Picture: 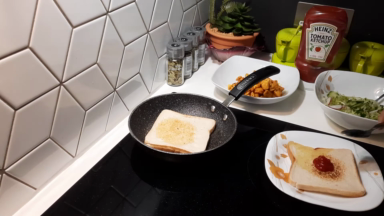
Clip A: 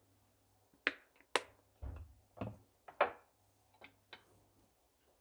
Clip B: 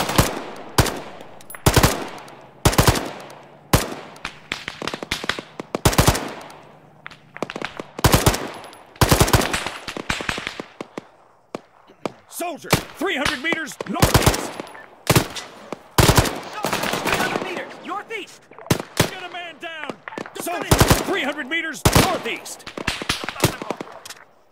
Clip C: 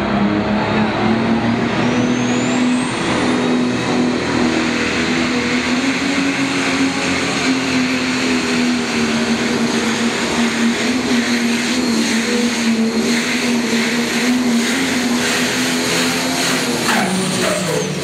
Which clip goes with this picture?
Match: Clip A